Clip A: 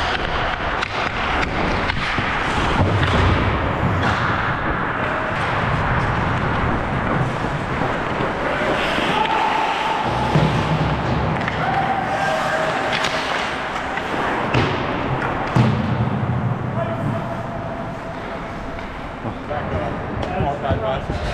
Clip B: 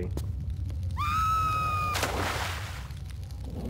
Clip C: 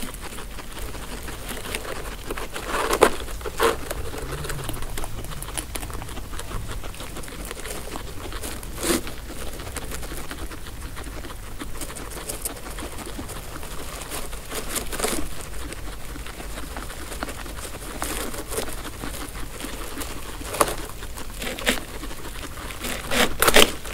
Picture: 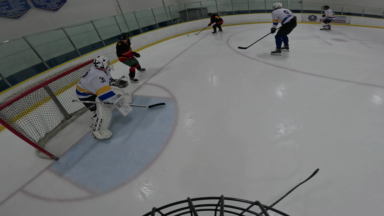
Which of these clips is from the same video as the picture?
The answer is A